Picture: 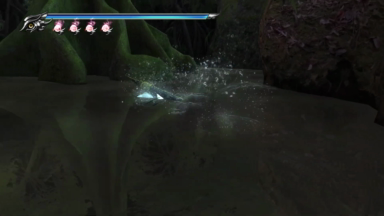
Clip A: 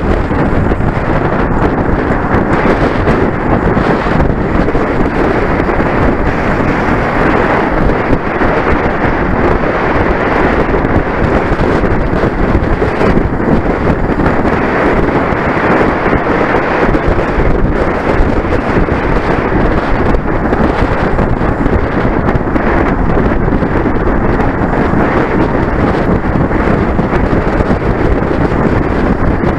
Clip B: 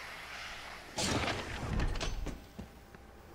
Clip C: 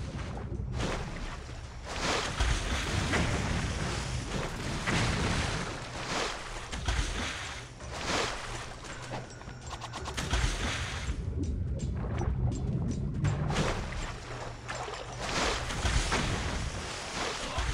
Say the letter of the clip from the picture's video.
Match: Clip C